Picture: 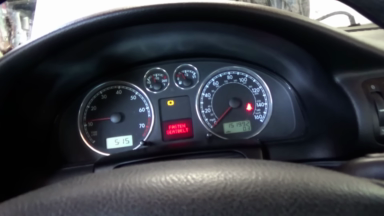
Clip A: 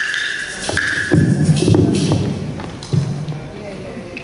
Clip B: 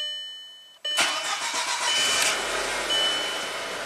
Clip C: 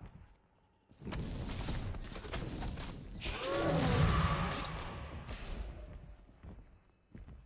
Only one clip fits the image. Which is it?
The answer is B